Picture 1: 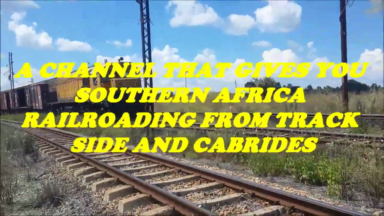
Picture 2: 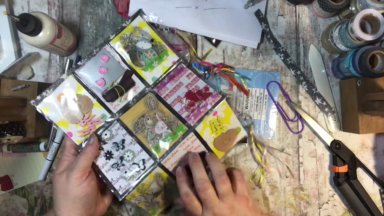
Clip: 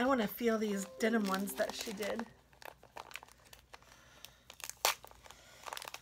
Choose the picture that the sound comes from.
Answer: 2